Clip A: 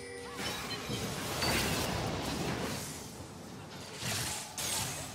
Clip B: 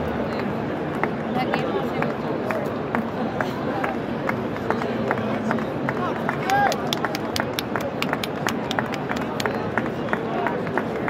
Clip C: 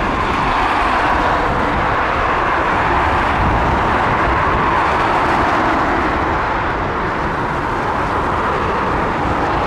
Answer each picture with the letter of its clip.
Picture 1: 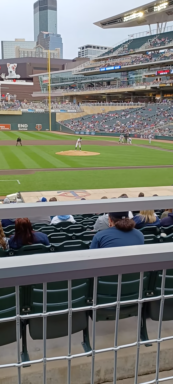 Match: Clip B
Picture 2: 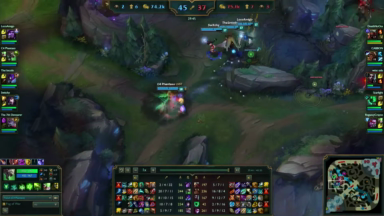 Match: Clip A